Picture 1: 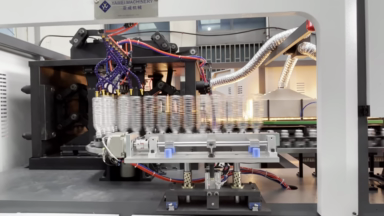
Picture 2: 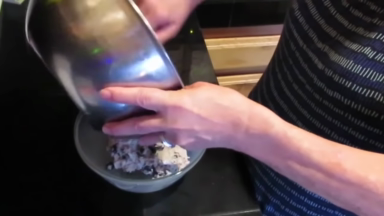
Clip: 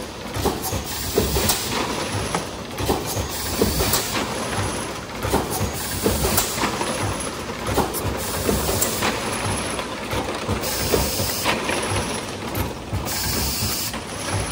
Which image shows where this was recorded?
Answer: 1